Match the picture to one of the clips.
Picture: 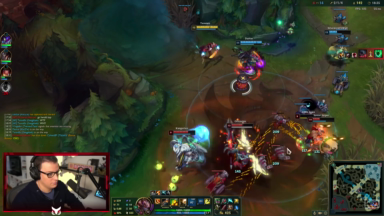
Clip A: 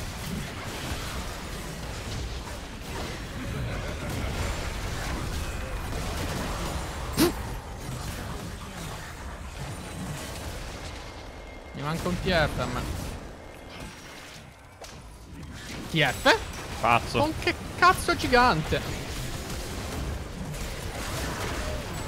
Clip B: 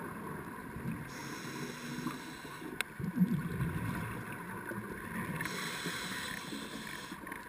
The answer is A